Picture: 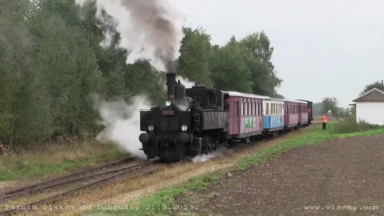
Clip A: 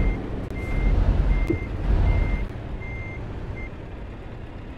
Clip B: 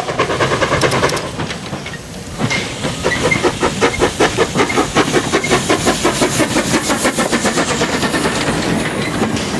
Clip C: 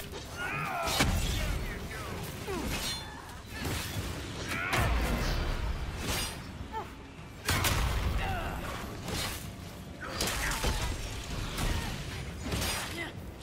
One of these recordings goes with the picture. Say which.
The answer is B